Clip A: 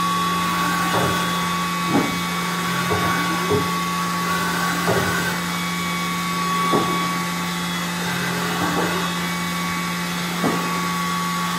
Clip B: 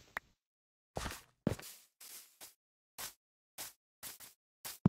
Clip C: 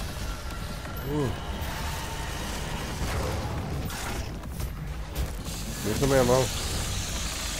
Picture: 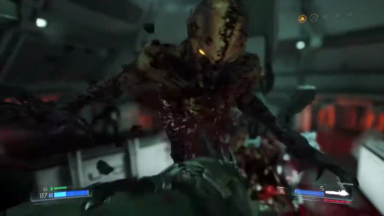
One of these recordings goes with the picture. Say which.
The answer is C